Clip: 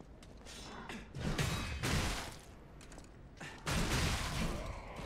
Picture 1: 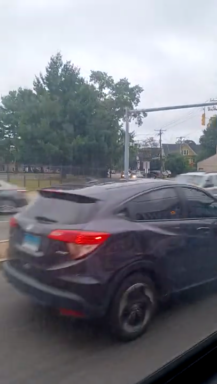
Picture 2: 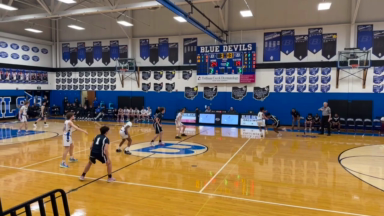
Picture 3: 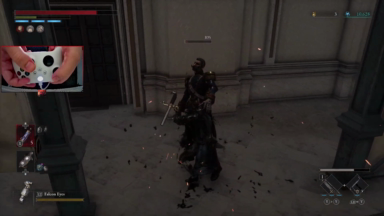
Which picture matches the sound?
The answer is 3